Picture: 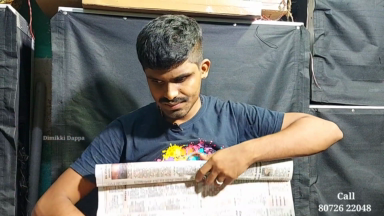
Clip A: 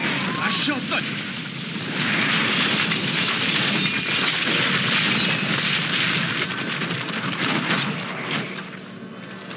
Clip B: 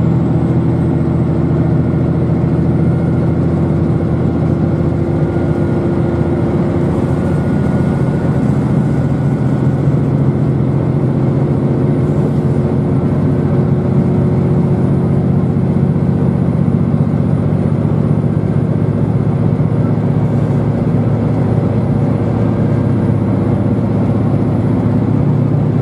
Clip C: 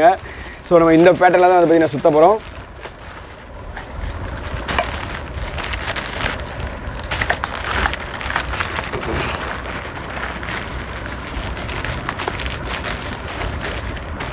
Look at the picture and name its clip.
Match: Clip C